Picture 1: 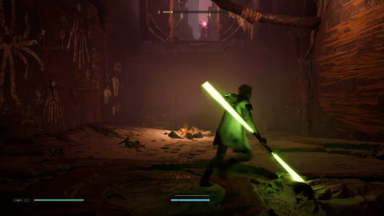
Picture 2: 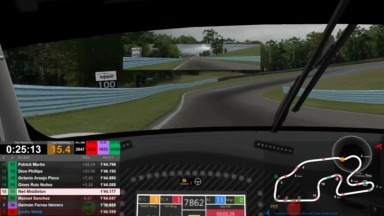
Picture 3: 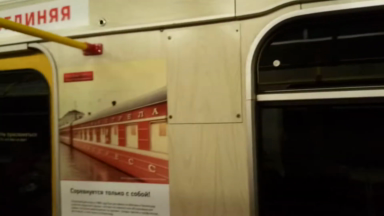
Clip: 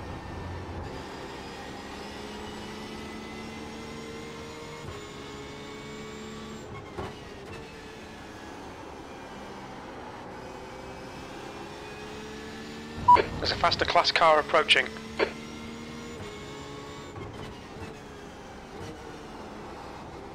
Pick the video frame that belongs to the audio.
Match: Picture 2